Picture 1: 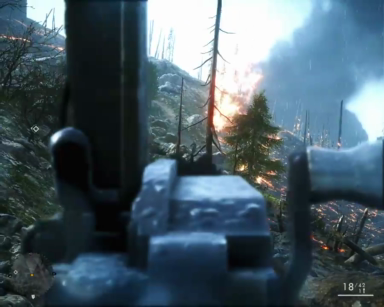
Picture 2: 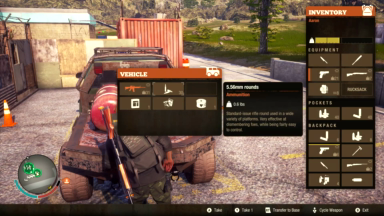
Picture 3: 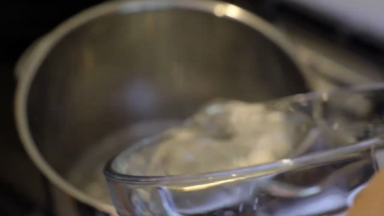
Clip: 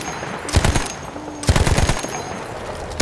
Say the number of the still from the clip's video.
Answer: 1